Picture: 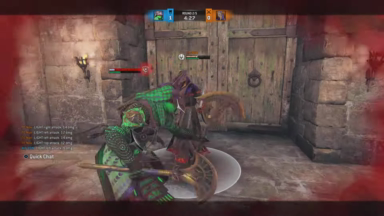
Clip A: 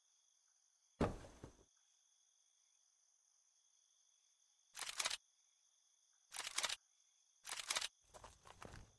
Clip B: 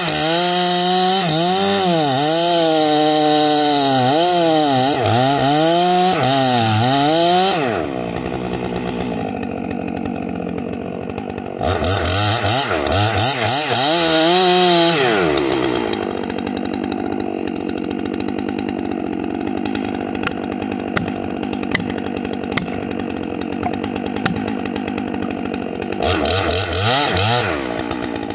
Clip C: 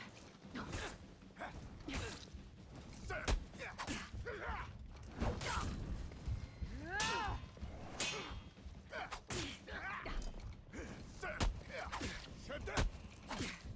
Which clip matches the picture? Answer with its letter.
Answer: C